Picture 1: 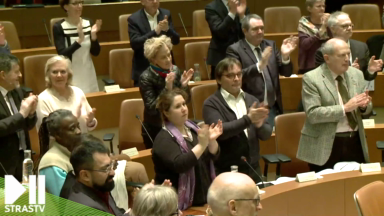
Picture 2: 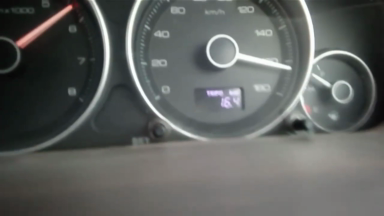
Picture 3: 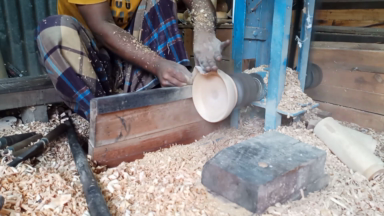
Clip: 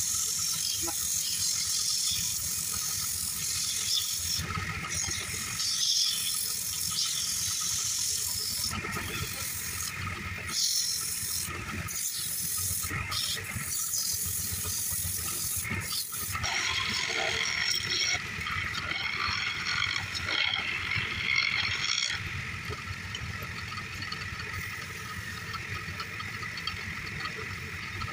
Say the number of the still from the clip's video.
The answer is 3